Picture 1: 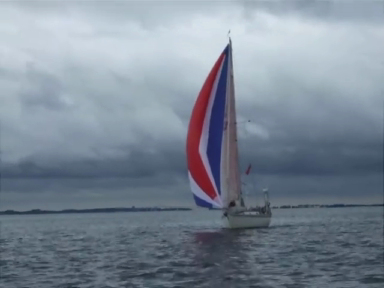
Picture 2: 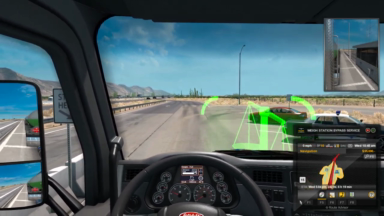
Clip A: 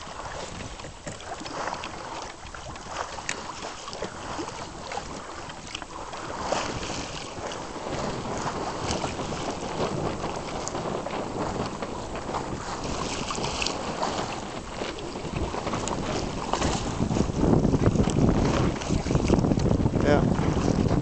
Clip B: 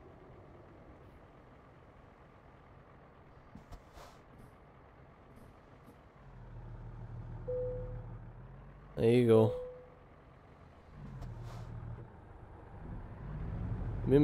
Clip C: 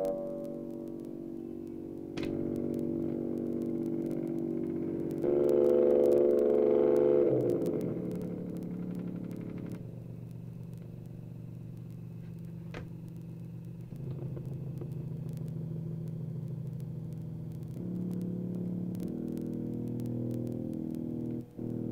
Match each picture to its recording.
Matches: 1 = A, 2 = B